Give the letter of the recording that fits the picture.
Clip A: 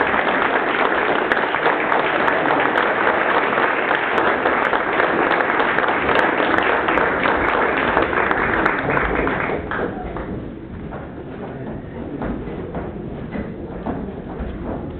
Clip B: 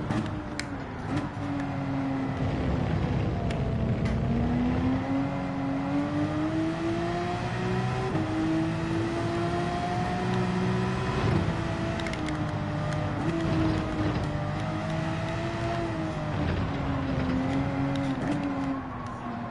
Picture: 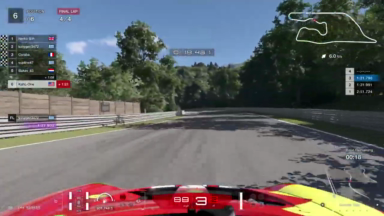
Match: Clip B